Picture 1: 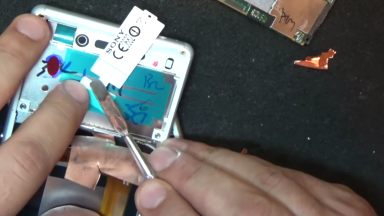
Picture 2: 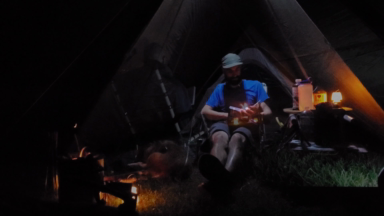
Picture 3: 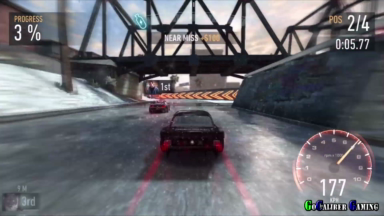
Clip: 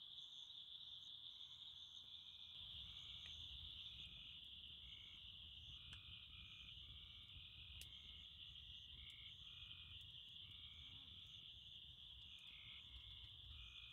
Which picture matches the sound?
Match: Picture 2